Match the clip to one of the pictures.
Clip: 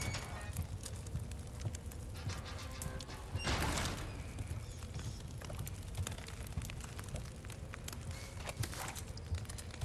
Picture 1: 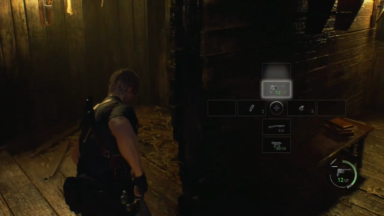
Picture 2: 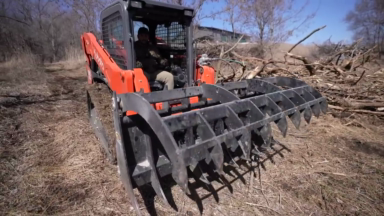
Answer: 1